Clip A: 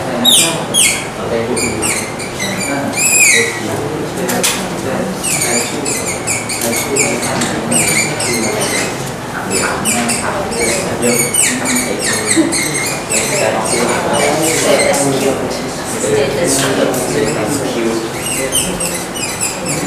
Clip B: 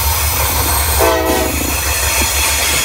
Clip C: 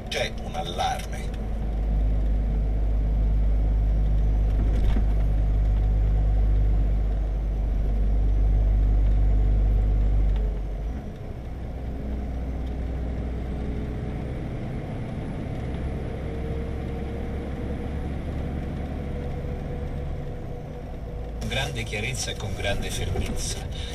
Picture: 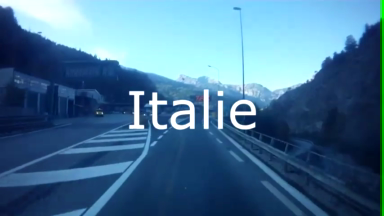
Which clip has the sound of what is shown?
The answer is C